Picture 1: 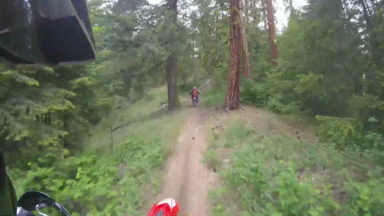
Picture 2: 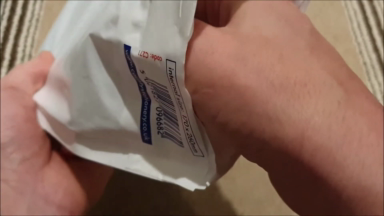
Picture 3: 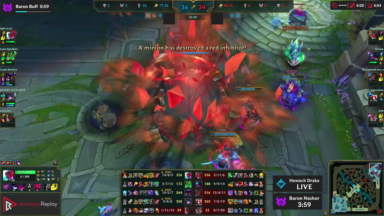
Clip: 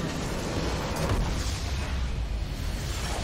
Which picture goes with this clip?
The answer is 3